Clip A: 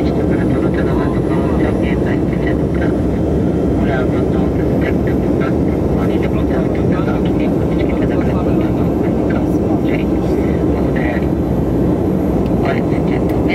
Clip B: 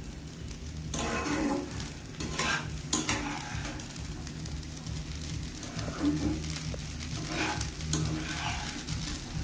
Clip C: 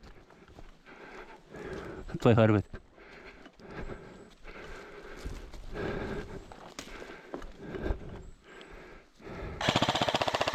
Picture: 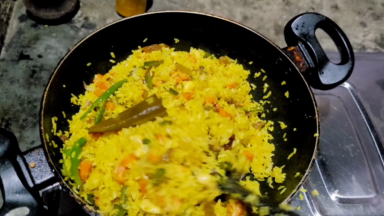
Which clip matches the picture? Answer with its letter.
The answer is B